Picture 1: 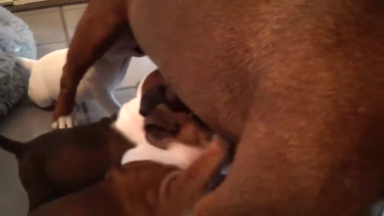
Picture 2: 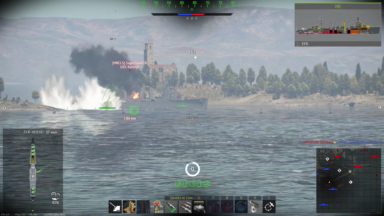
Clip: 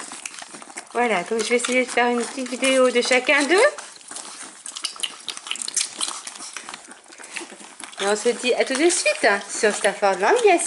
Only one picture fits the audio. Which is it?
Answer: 1